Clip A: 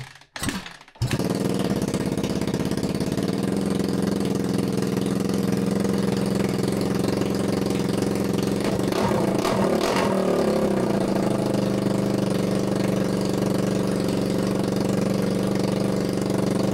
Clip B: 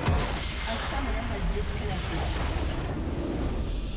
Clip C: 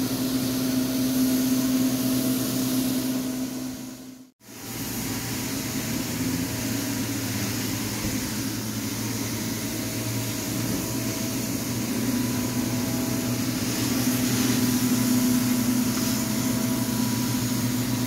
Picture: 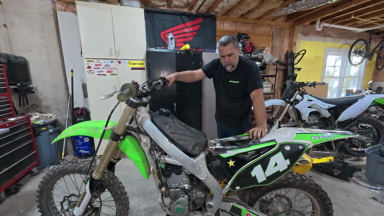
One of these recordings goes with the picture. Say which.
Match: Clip A